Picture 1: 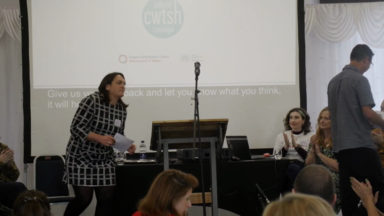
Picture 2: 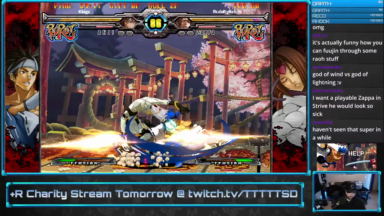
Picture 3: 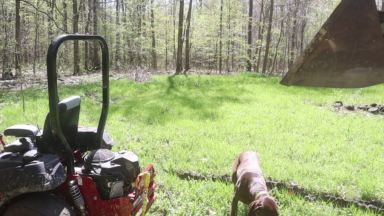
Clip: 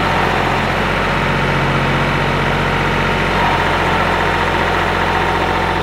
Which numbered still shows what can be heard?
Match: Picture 3